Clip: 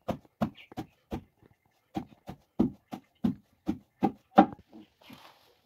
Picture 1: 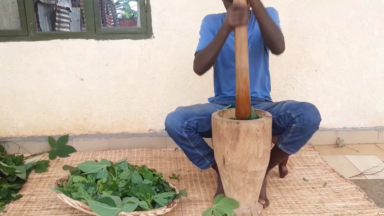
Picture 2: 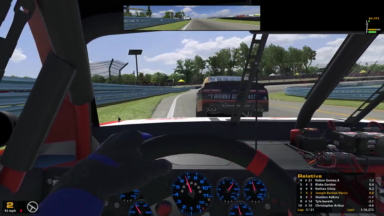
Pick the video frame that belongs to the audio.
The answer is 1